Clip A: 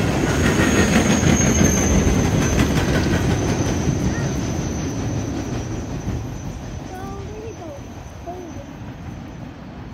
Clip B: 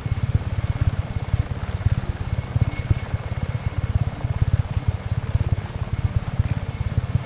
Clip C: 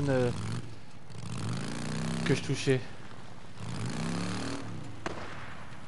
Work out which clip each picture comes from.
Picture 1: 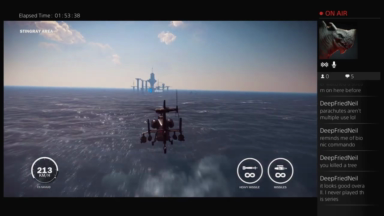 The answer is B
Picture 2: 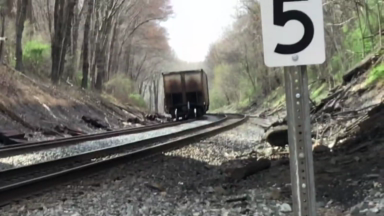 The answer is A